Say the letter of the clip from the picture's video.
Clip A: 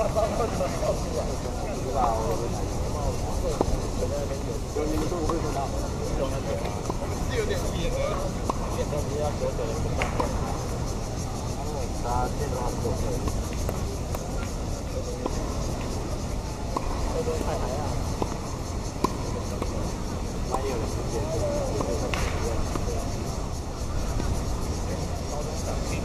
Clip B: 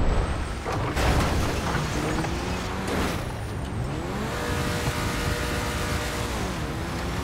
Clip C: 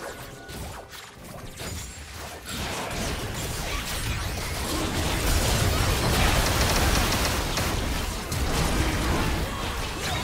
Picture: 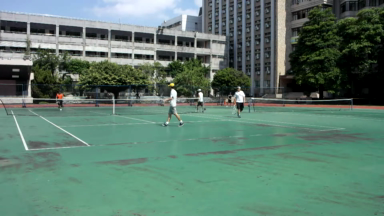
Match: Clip A